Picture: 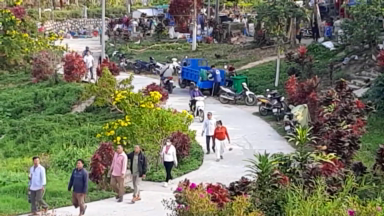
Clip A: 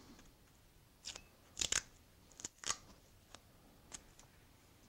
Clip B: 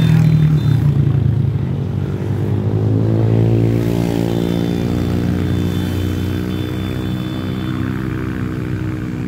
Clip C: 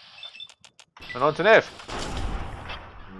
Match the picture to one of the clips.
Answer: B